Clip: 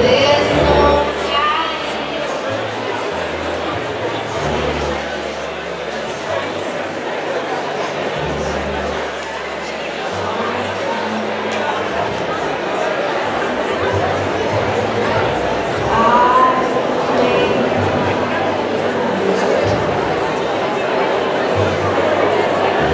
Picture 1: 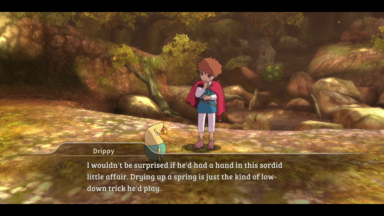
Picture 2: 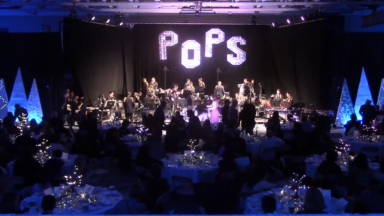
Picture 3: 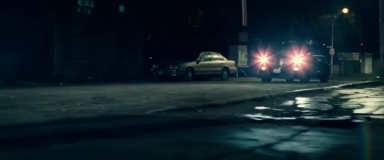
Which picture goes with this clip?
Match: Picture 2